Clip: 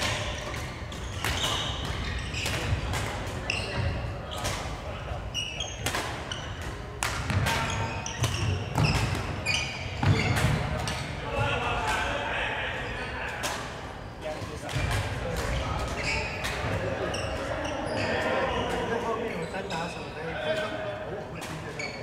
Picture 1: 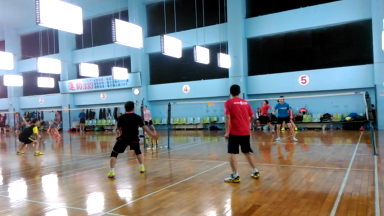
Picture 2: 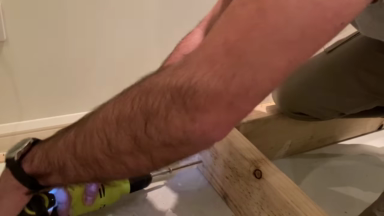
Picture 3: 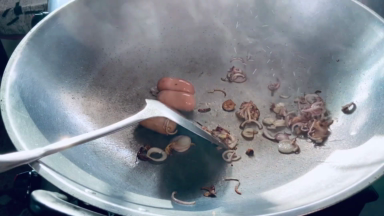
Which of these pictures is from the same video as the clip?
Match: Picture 1